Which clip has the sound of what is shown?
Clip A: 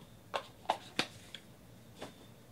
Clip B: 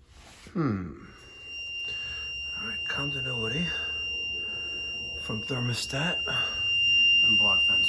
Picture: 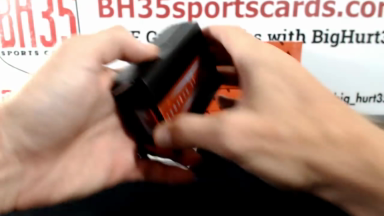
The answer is A